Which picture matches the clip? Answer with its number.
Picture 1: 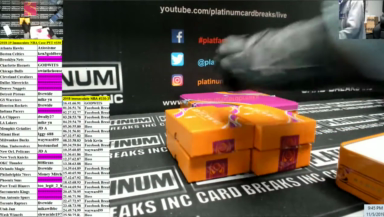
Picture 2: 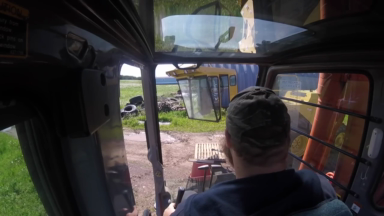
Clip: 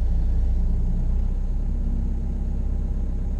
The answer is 2